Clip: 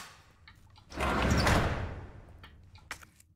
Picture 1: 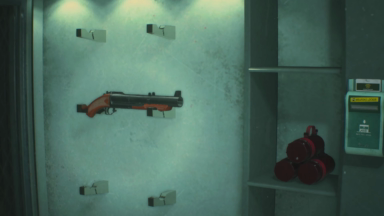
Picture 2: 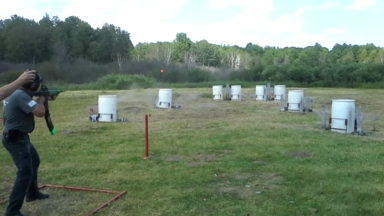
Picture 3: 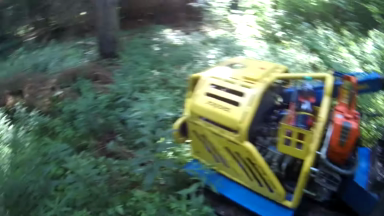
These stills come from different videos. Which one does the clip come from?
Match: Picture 1